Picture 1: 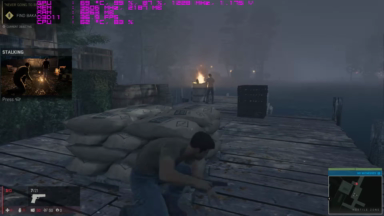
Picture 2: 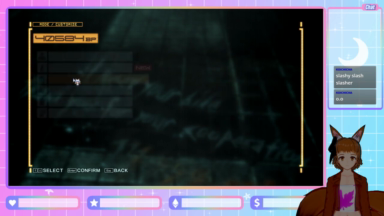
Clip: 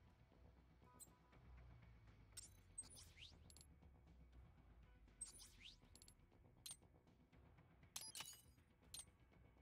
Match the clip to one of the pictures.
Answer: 2